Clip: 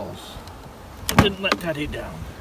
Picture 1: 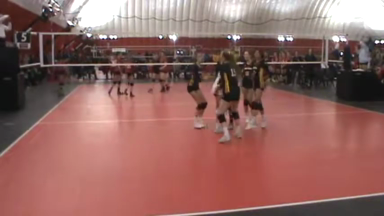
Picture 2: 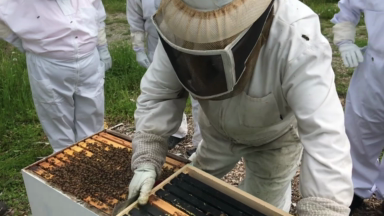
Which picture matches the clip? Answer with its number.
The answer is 2